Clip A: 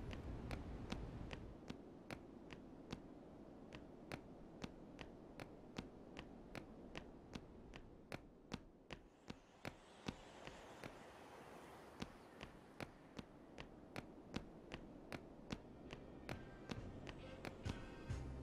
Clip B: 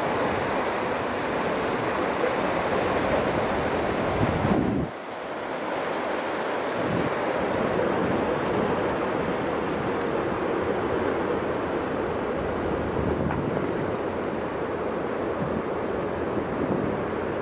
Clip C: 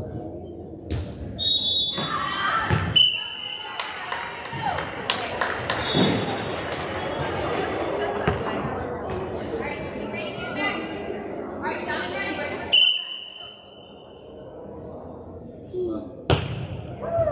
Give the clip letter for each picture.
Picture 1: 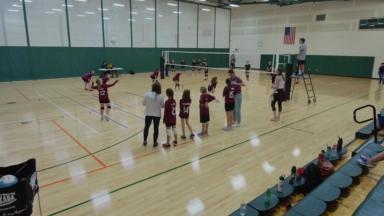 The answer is C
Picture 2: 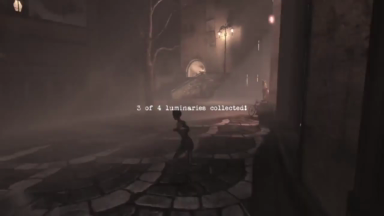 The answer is A